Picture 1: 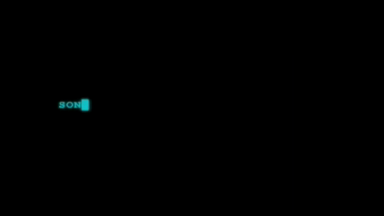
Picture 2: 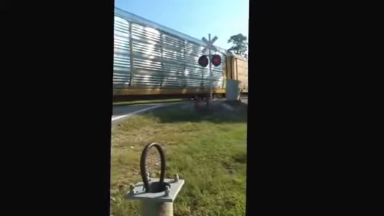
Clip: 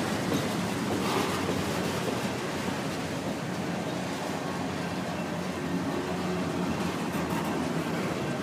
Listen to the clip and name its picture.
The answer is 2